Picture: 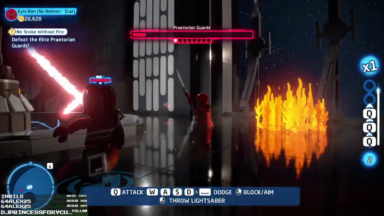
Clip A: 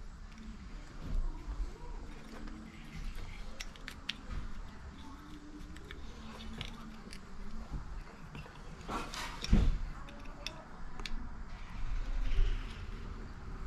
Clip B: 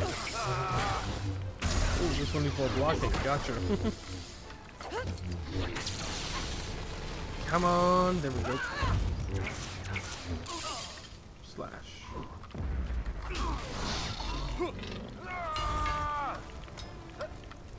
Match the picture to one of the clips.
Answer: B